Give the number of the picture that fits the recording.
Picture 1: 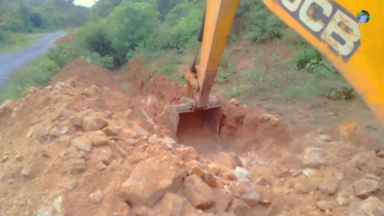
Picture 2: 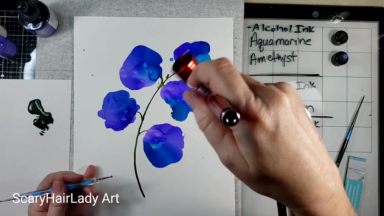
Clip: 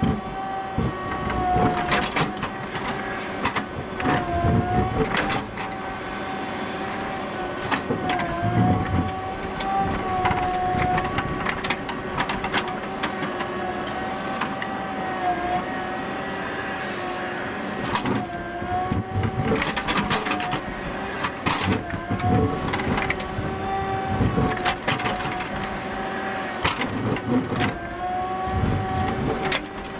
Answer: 1